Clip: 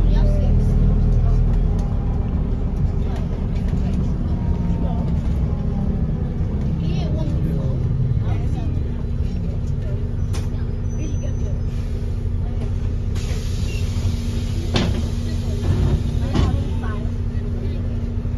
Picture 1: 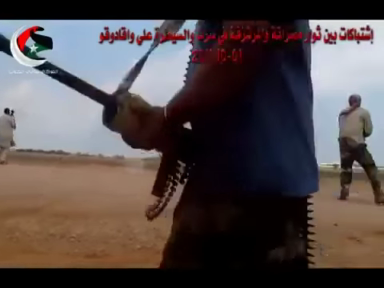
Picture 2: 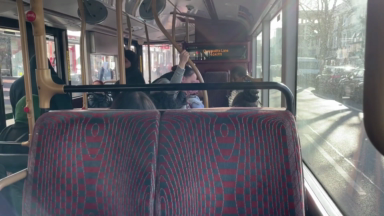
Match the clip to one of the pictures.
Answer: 2